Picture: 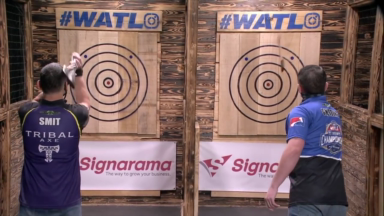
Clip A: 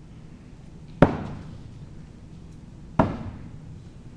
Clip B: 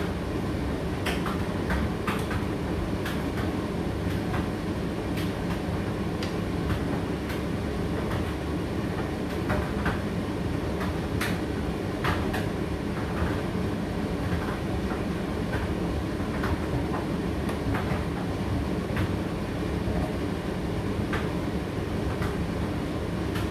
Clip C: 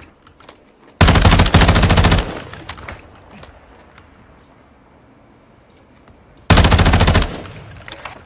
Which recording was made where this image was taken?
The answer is A